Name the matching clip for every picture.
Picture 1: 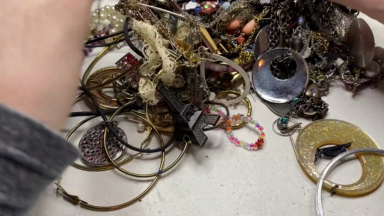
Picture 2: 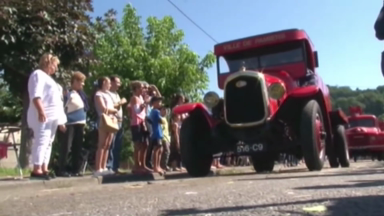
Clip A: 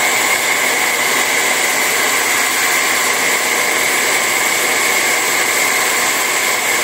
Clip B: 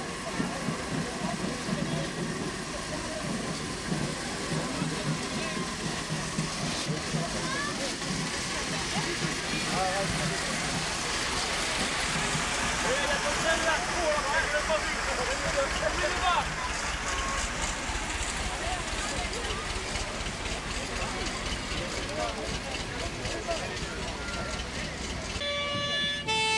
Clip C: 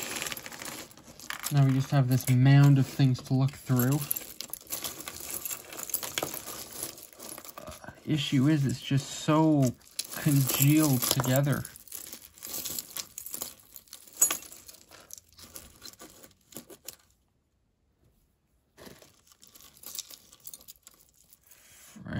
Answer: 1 C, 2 B